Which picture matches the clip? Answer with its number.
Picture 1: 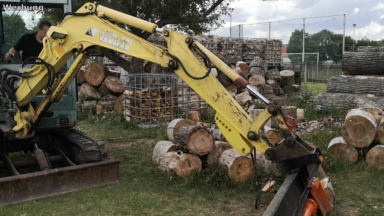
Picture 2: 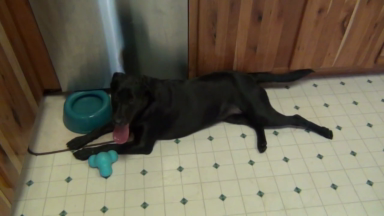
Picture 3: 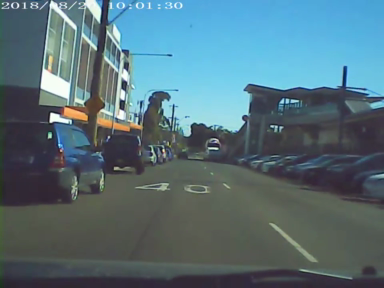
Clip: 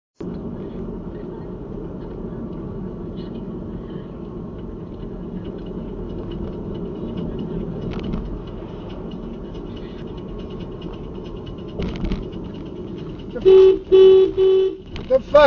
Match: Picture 3